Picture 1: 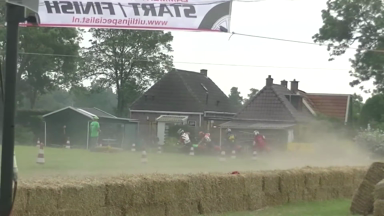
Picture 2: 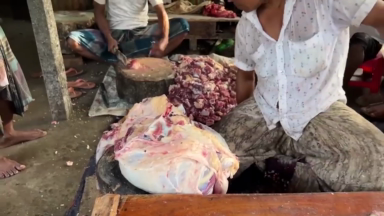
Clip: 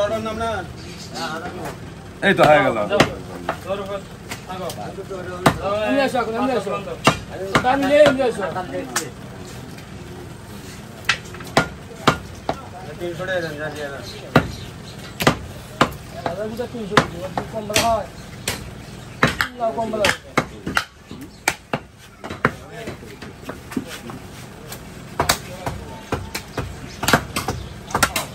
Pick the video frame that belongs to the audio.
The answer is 2